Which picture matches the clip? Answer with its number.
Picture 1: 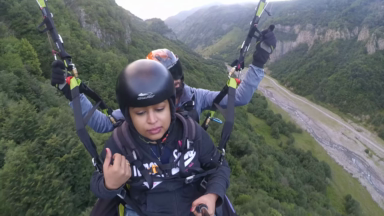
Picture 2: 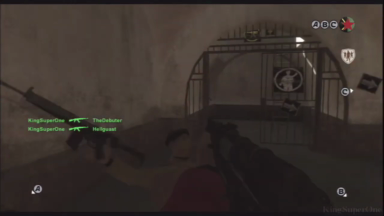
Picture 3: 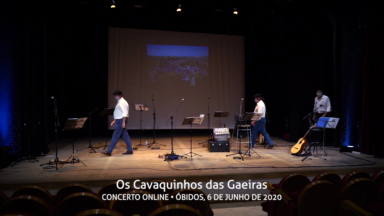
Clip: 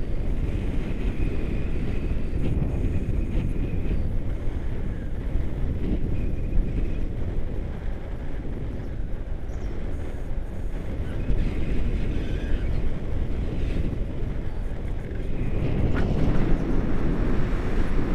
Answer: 1